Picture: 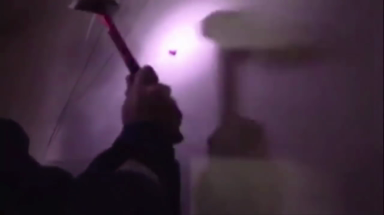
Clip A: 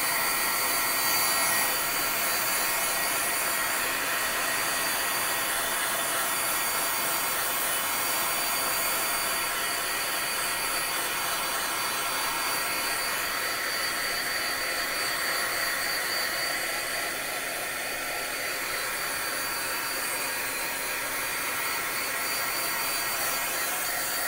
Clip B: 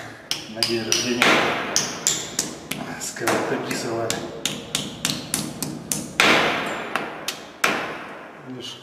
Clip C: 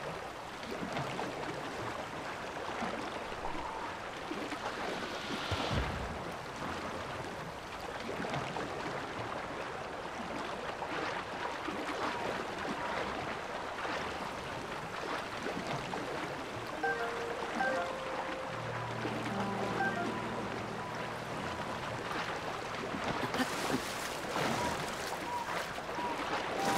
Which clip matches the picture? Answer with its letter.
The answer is B